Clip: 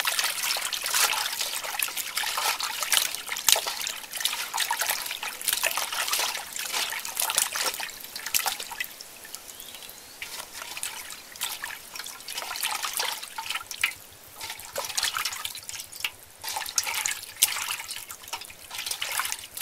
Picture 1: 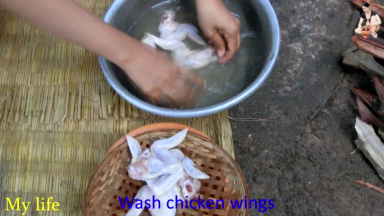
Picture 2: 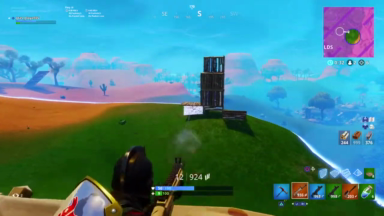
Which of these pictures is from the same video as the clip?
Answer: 1